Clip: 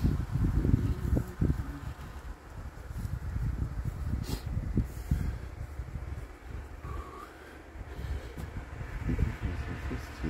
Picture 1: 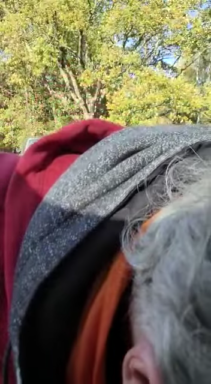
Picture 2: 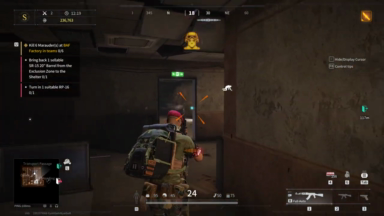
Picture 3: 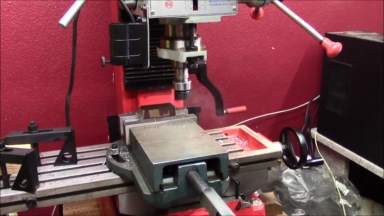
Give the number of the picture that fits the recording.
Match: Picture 1